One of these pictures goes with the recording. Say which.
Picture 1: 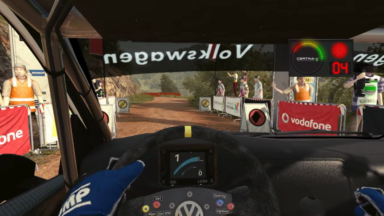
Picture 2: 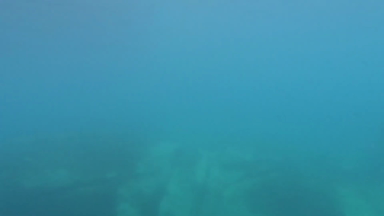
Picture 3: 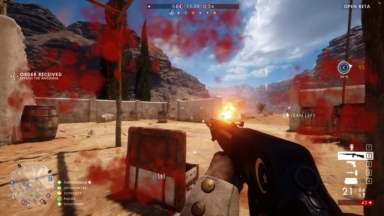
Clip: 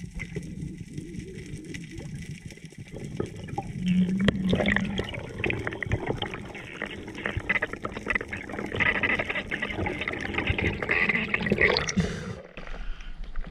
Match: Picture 2